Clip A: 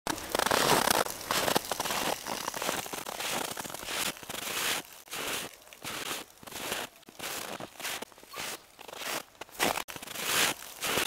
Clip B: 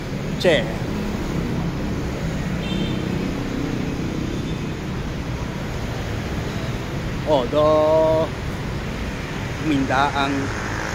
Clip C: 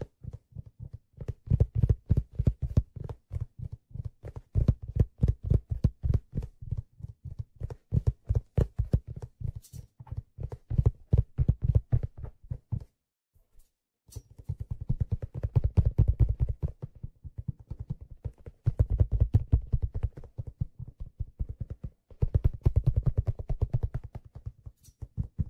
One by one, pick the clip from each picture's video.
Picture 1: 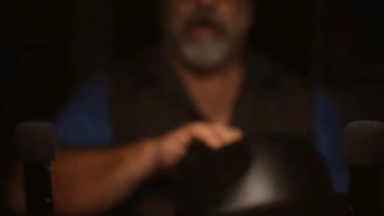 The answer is C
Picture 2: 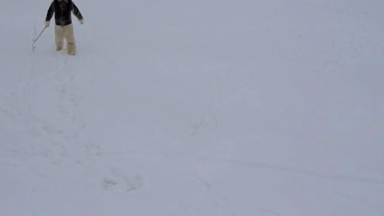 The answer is A